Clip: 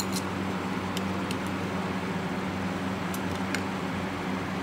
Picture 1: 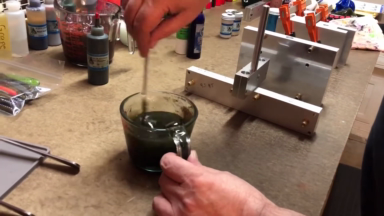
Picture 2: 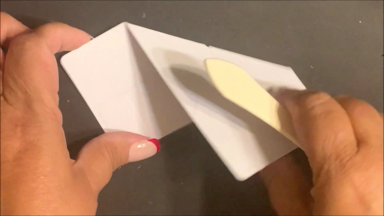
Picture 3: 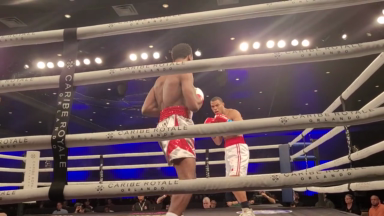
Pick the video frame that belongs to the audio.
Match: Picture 1